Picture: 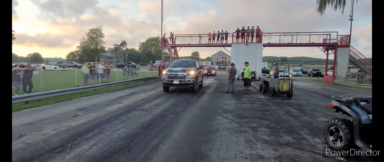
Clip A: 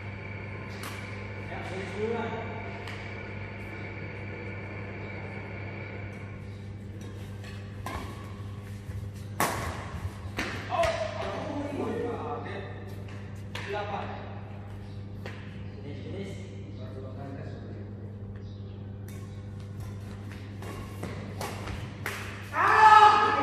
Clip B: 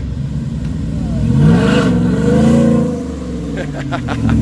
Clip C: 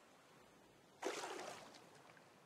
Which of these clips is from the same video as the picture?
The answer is B